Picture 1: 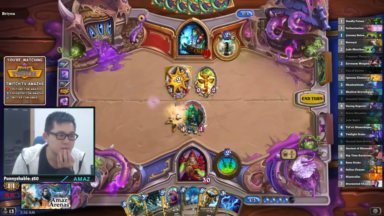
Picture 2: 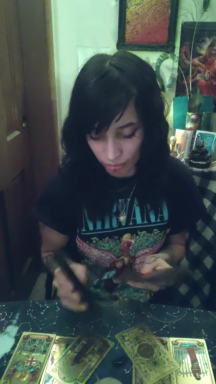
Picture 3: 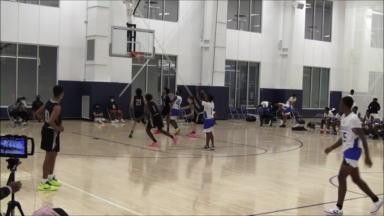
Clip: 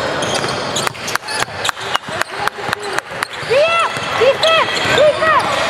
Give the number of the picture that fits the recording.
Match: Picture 3